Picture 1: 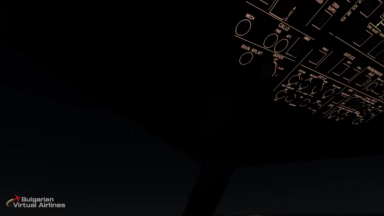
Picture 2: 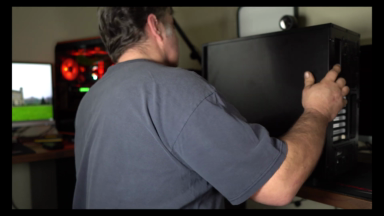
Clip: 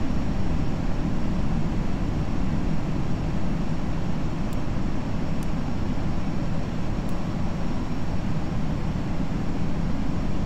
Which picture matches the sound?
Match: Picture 1